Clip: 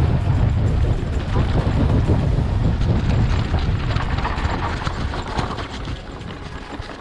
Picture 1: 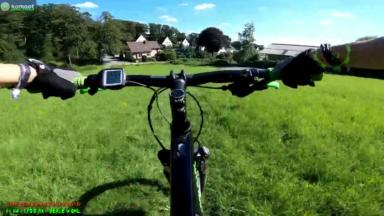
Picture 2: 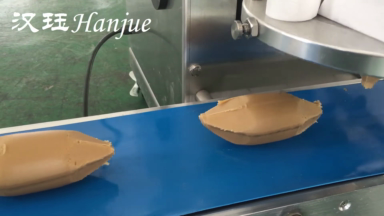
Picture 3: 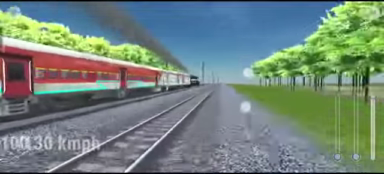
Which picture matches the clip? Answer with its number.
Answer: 1